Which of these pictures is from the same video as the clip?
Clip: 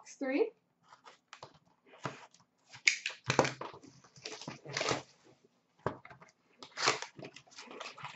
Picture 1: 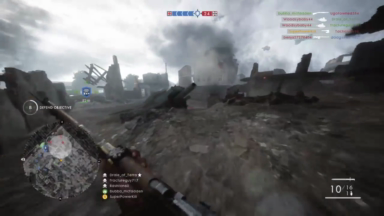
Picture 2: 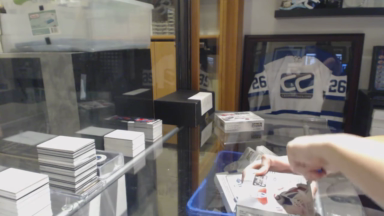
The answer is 2